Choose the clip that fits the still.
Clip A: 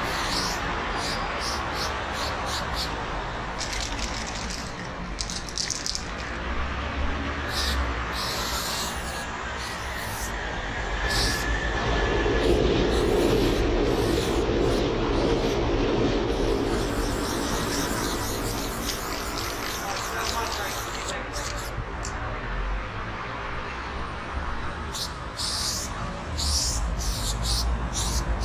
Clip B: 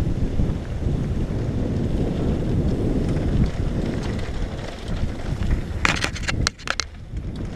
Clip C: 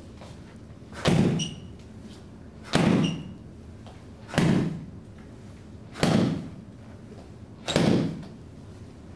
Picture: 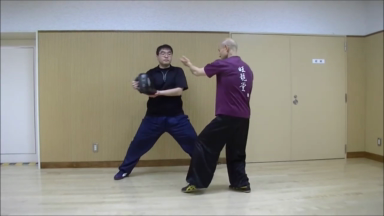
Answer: C